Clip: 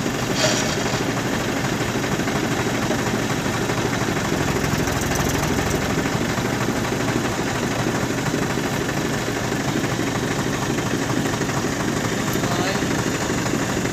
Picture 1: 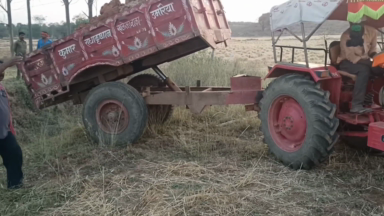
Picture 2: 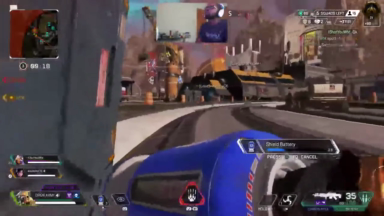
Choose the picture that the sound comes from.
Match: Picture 1